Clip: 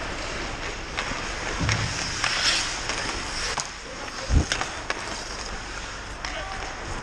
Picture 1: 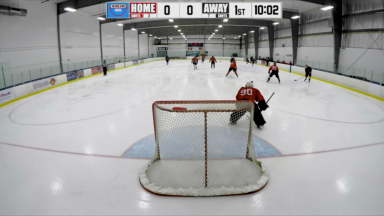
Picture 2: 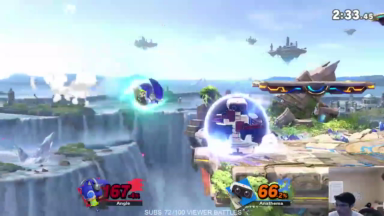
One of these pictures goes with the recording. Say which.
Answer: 1